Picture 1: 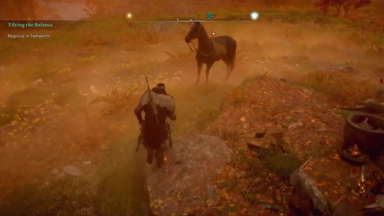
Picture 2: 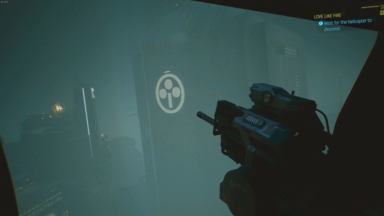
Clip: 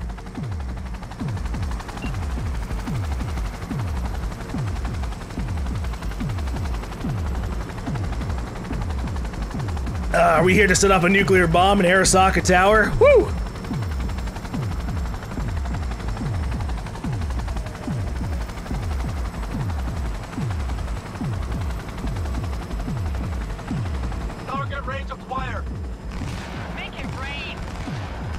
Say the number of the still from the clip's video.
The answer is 2